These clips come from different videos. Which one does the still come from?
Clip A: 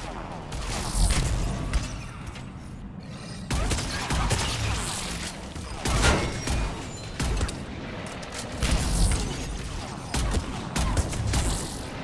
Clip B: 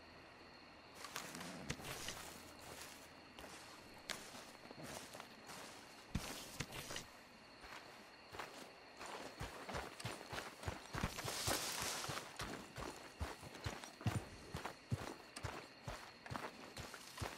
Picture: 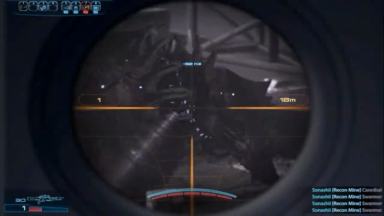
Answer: A